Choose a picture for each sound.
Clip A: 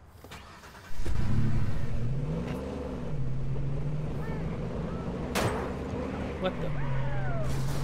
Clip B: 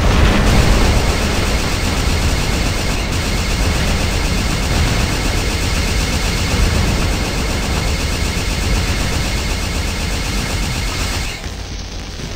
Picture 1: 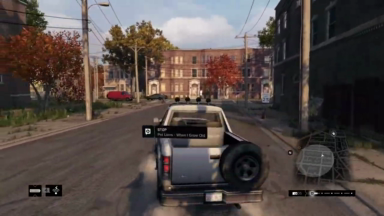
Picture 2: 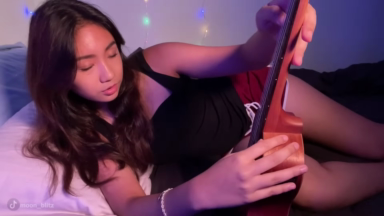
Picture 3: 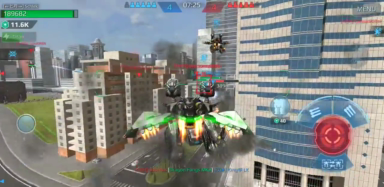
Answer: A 1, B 3